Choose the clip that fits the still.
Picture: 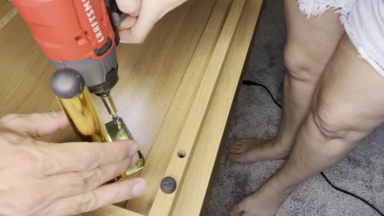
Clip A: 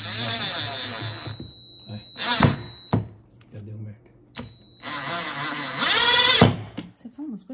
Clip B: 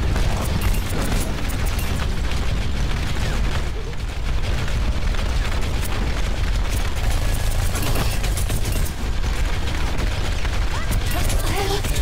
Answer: A